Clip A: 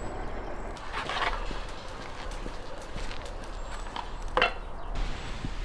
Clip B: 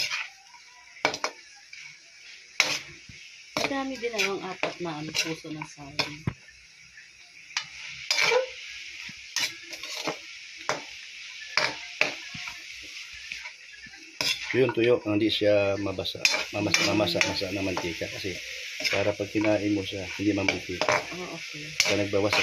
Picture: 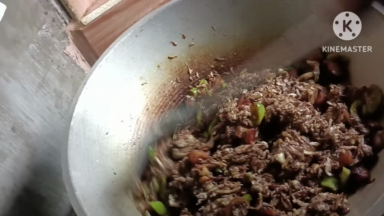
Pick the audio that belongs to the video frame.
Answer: B